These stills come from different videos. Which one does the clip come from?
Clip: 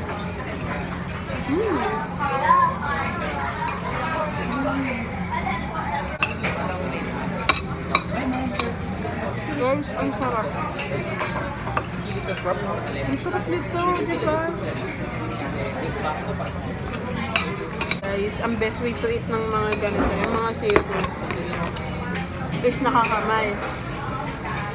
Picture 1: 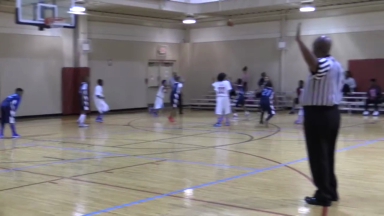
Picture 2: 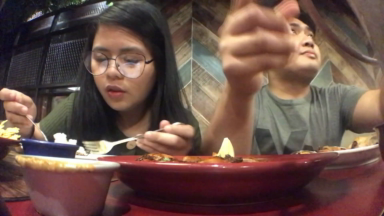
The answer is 2